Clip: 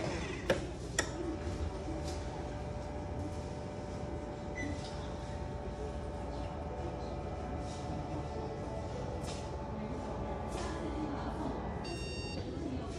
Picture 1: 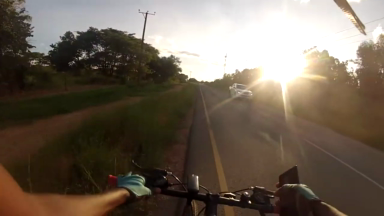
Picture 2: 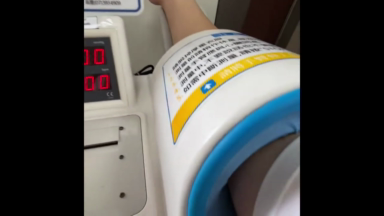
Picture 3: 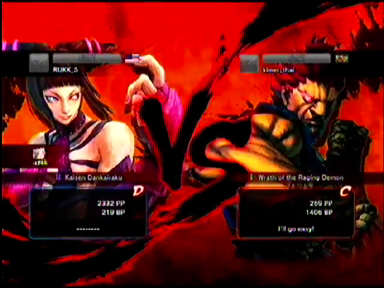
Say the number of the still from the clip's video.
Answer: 2